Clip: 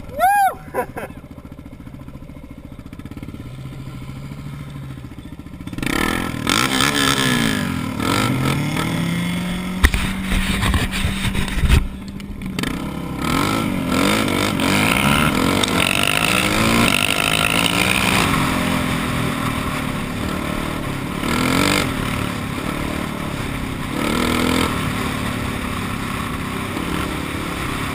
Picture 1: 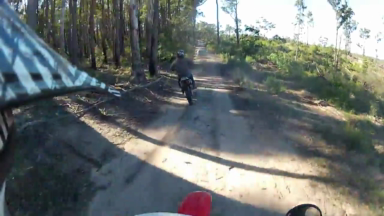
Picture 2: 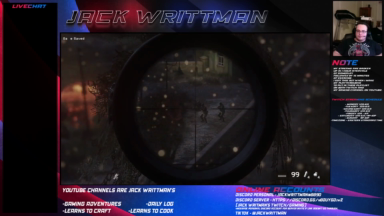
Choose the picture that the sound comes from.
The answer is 1